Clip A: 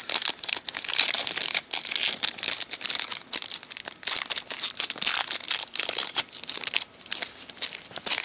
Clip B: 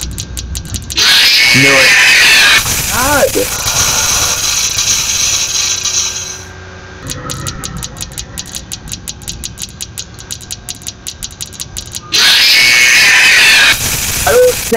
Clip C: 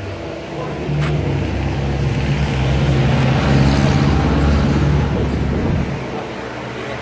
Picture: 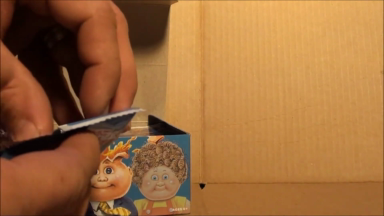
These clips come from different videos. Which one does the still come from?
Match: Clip A